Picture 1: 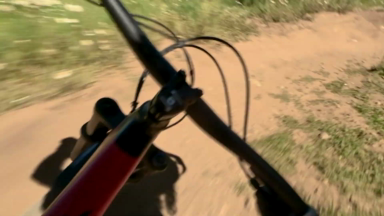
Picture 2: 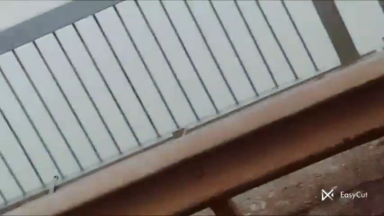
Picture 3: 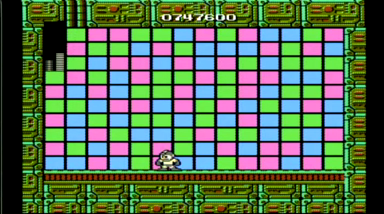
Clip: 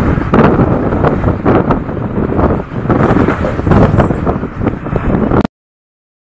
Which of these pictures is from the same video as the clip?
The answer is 2